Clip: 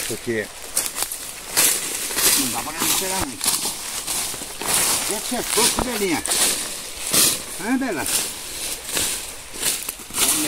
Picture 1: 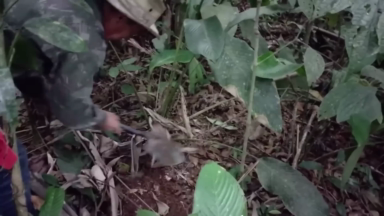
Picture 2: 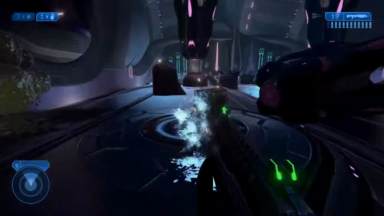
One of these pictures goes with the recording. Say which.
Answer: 1